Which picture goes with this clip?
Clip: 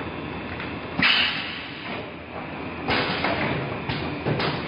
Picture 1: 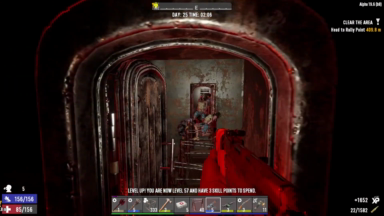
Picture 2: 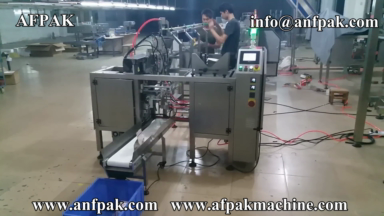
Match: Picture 2